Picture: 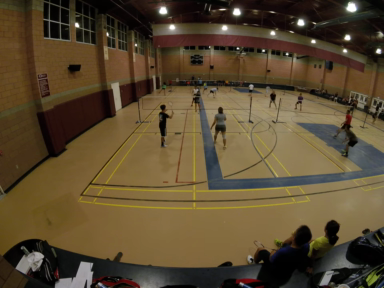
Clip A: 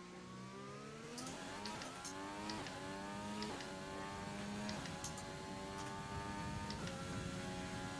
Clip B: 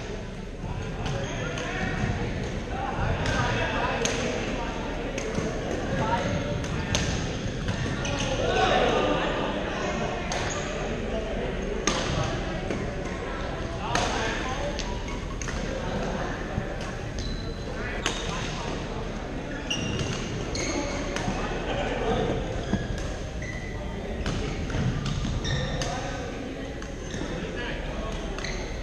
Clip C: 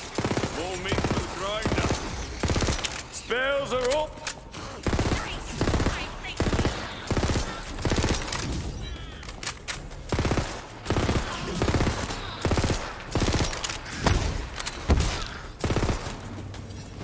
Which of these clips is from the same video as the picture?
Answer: B